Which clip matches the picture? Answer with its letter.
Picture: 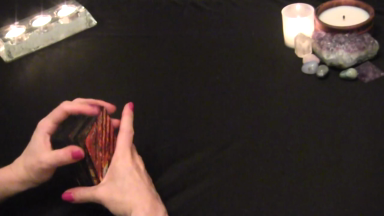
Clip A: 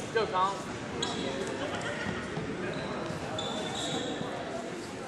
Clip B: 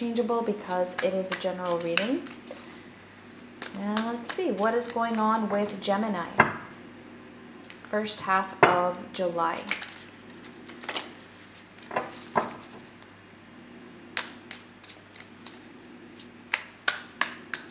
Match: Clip B